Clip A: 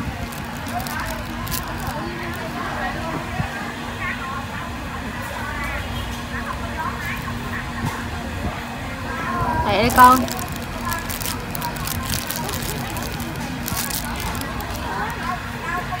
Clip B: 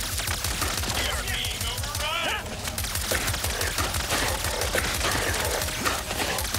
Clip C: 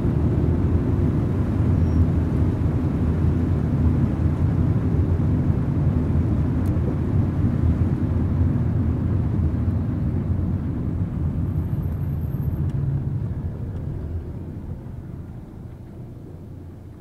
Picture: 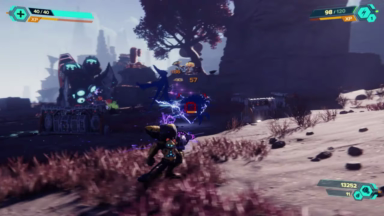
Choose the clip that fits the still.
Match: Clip B